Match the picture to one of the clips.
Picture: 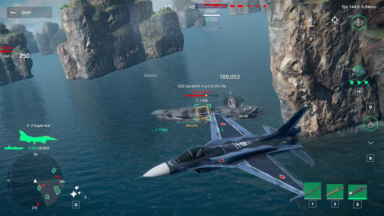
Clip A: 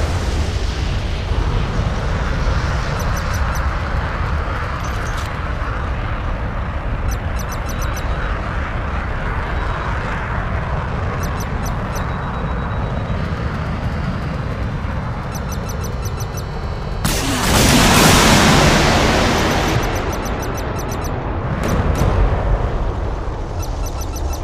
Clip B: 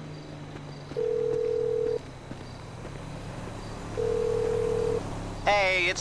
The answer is A